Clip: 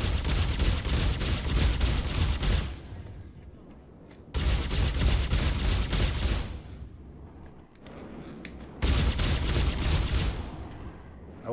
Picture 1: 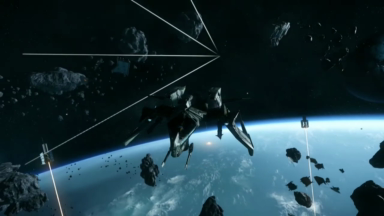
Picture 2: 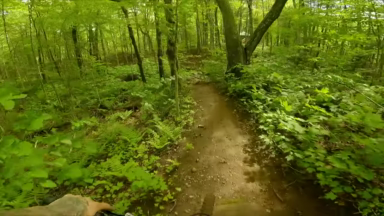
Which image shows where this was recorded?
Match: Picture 1